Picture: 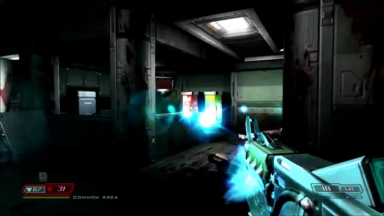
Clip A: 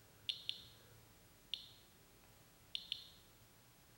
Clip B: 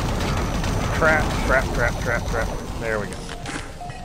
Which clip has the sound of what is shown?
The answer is B